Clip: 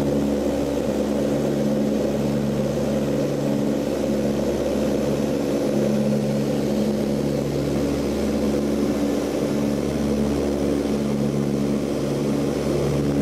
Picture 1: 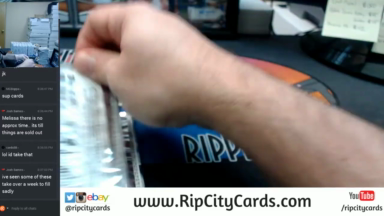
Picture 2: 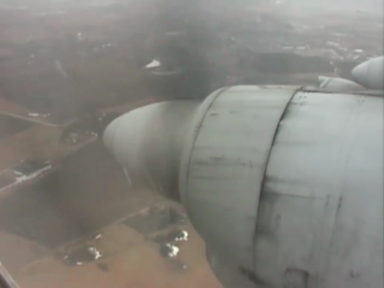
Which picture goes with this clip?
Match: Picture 2